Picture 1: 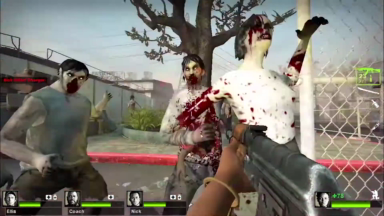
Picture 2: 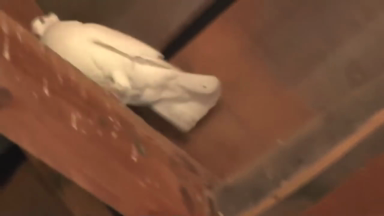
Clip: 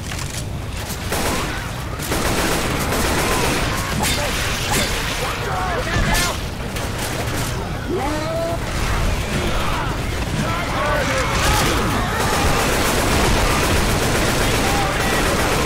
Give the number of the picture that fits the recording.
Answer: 1